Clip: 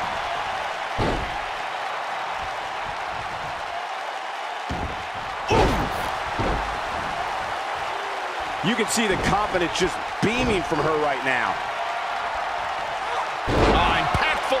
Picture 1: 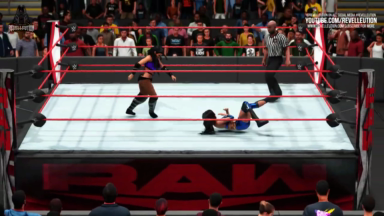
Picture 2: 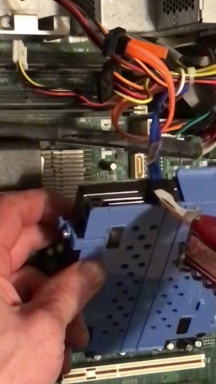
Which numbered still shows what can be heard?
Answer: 1